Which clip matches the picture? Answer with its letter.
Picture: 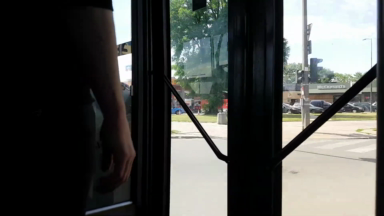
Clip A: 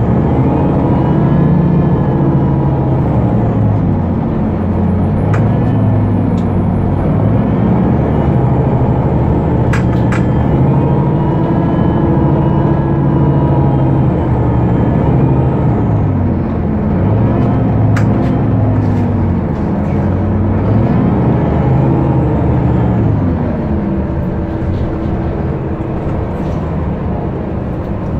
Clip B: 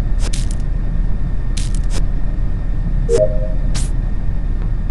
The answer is A